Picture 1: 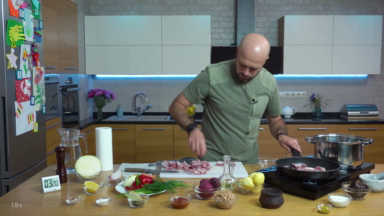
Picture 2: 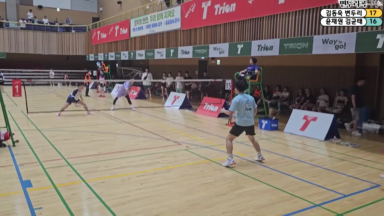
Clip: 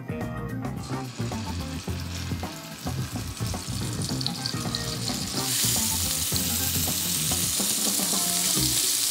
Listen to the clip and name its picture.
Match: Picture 1